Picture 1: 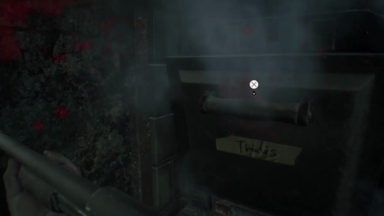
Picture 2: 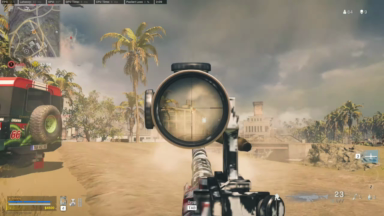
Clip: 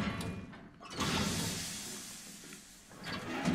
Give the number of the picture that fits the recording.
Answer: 1